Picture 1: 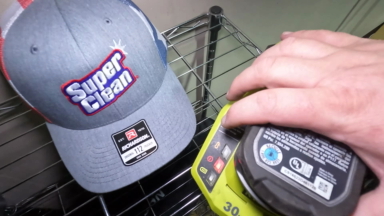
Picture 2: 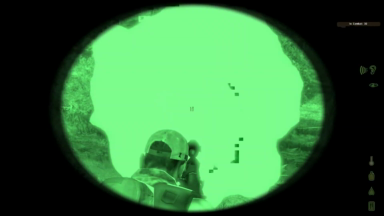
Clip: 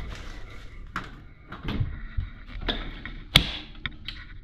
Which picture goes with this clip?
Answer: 1